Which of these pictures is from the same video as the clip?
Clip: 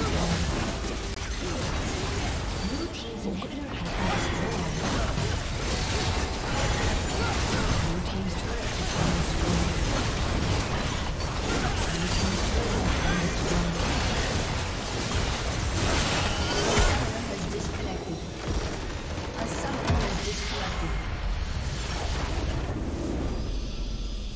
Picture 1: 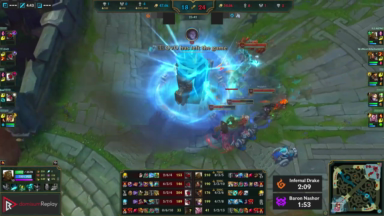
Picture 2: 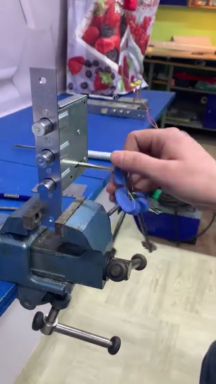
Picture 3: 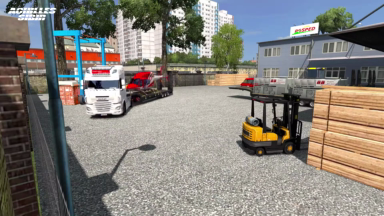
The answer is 1